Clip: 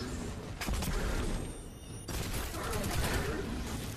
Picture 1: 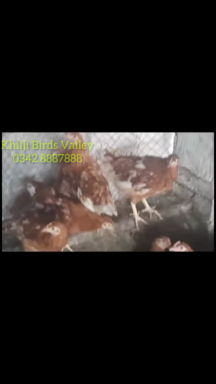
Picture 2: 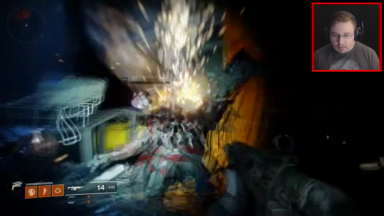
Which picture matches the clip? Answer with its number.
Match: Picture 2